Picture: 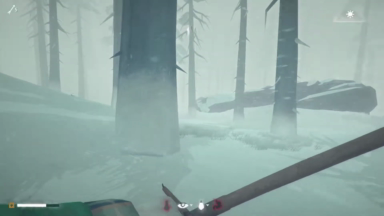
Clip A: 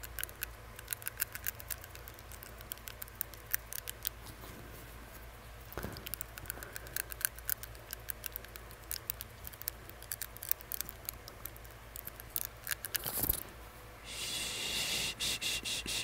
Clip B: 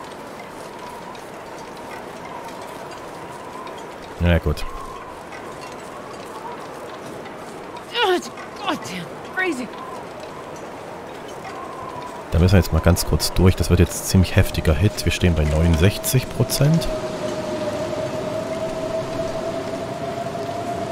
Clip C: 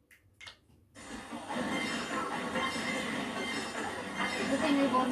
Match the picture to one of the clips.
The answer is B